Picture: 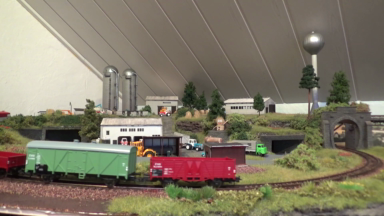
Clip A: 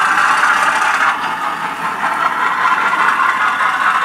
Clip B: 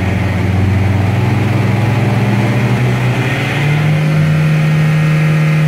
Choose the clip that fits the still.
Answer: A